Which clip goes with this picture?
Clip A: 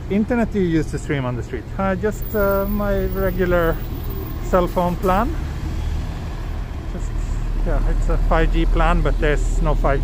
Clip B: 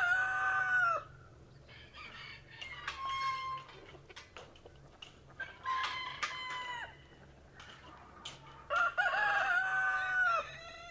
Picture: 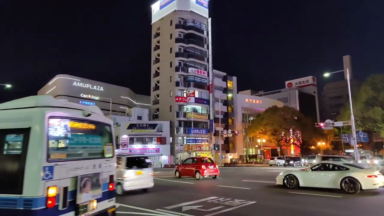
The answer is A